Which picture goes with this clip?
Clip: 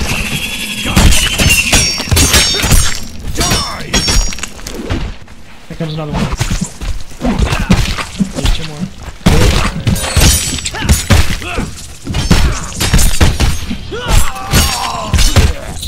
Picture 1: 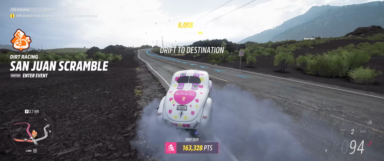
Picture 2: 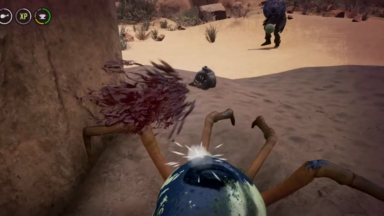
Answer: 2